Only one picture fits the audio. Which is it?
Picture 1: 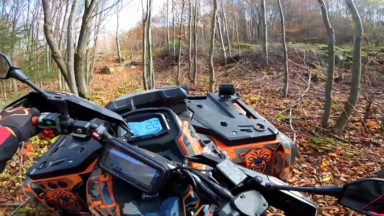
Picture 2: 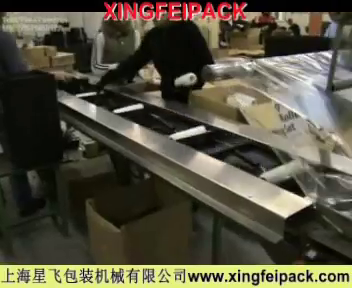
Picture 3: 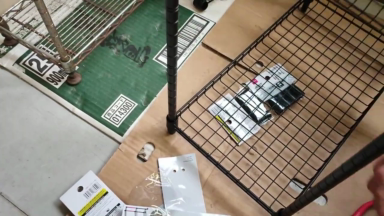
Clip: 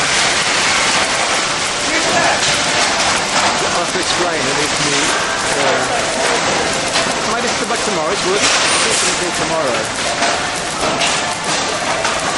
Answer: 2